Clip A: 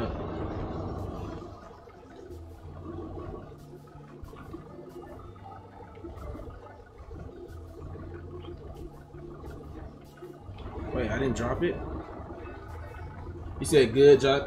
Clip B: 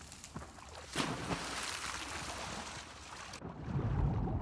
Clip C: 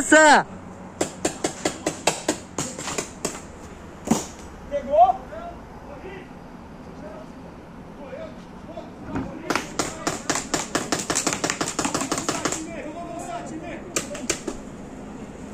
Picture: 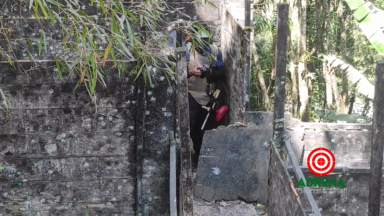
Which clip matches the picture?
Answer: C